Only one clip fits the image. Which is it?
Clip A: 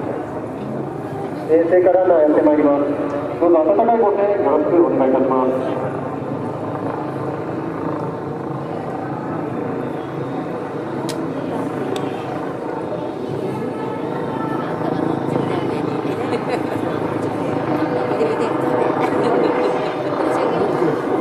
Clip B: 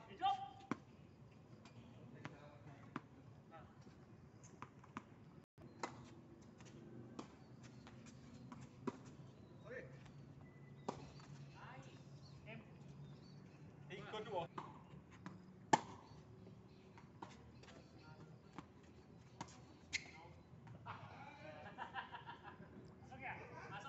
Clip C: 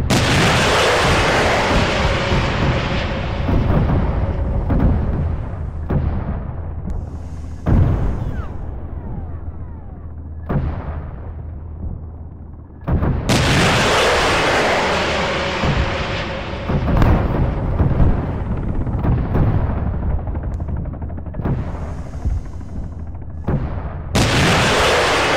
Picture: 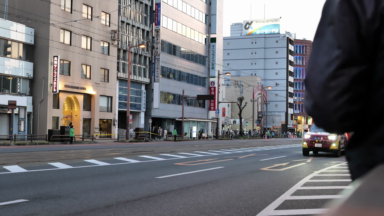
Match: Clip A